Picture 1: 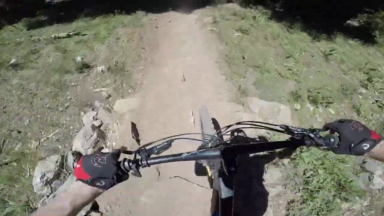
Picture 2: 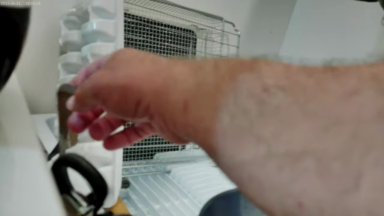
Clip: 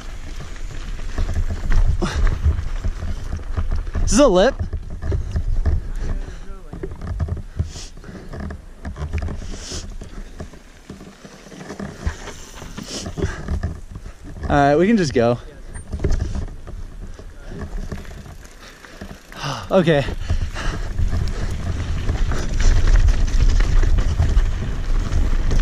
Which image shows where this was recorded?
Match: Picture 1